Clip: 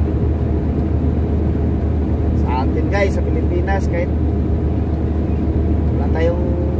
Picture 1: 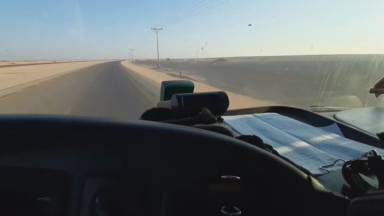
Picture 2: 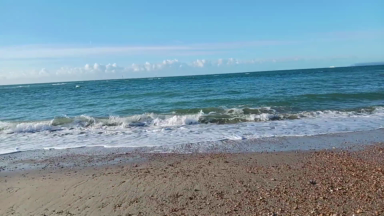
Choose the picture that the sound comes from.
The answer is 1